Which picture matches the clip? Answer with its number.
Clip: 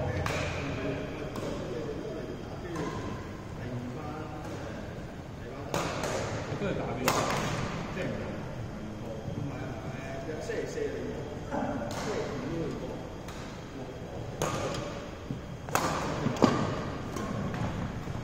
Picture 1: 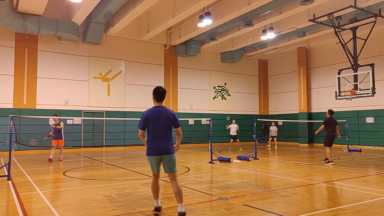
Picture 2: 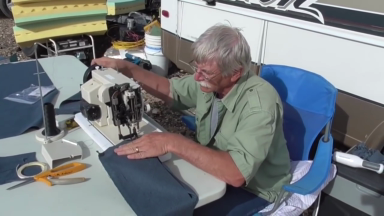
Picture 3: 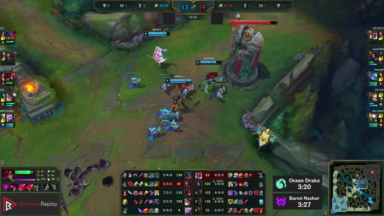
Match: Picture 1